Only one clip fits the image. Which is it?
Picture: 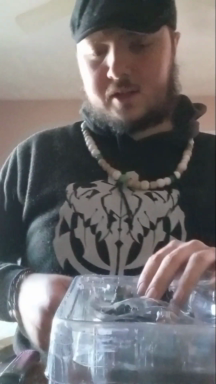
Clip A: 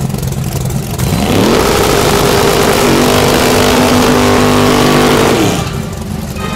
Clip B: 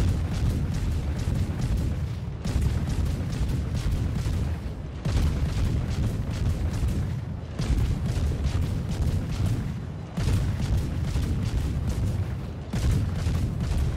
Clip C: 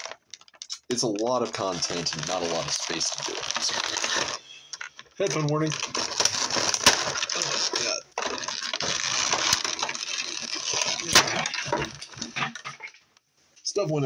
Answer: C